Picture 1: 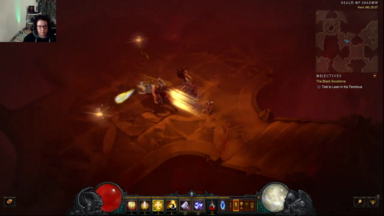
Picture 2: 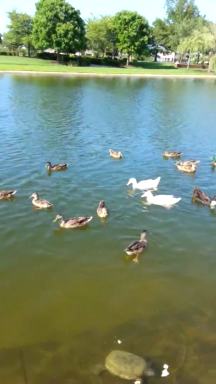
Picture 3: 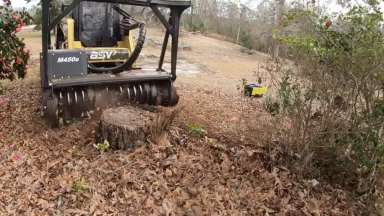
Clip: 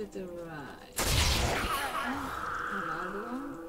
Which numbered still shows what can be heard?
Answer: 1